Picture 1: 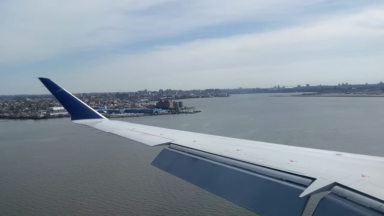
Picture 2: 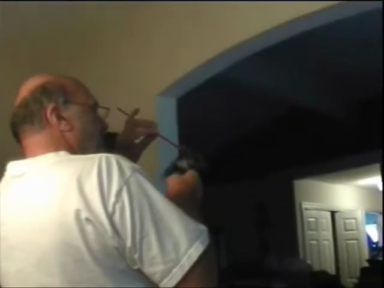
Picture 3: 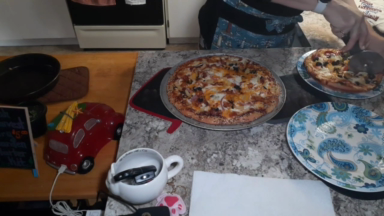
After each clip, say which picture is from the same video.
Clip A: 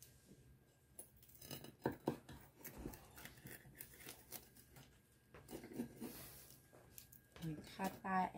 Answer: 3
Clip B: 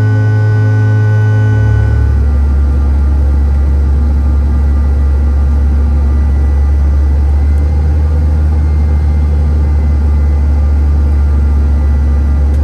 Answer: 1